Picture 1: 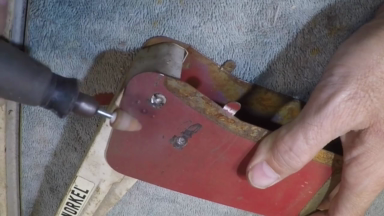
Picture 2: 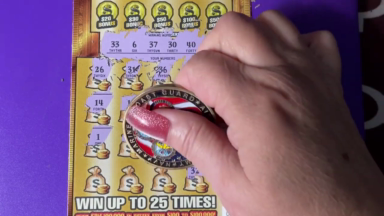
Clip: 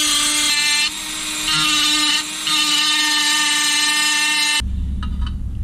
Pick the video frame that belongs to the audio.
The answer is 1